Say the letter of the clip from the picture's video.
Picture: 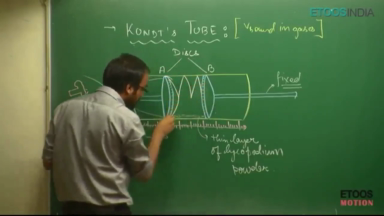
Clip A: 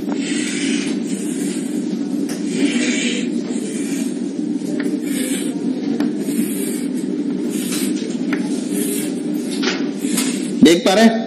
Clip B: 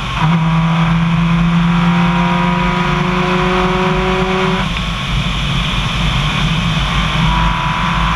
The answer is A